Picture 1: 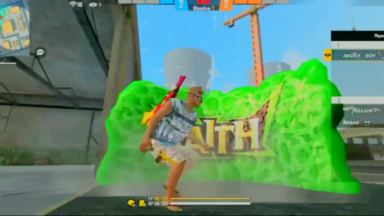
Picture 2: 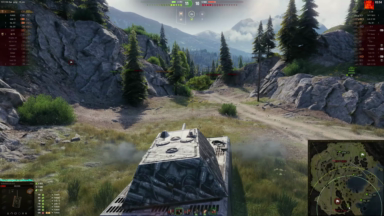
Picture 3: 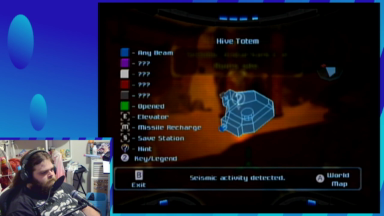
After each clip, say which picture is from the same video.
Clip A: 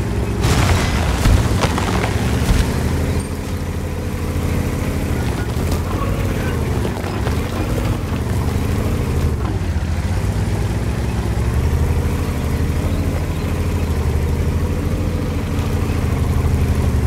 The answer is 2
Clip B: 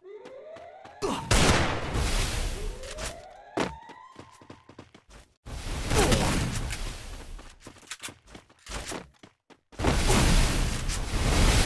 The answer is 1